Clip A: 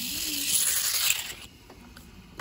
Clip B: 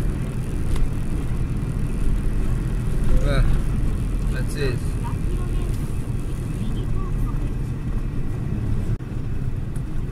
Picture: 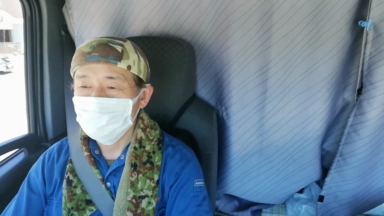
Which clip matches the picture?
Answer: B